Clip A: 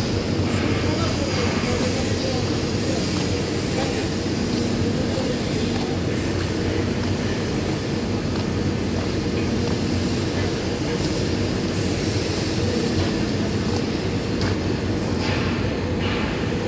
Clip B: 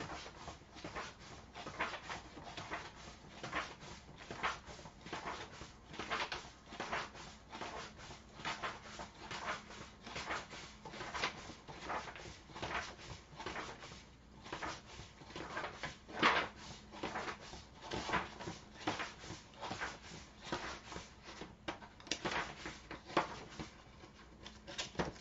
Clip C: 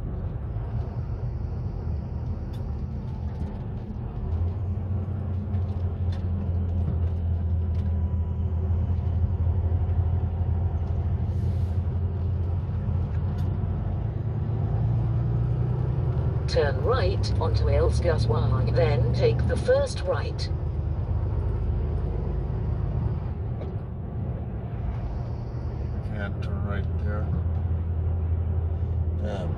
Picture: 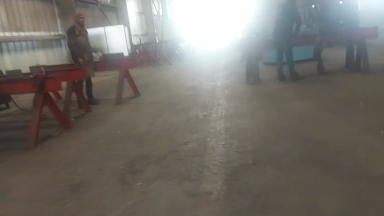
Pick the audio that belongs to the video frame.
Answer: A